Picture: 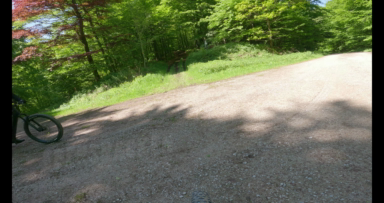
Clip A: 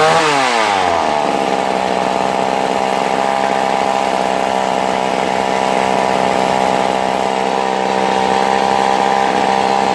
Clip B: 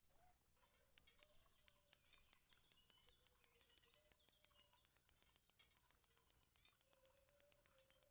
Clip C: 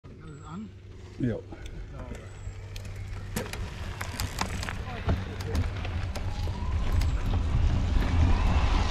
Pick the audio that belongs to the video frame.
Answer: C